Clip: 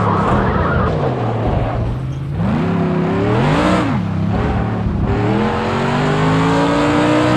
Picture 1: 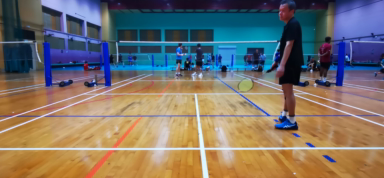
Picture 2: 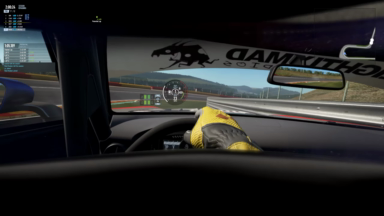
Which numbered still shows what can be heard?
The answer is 2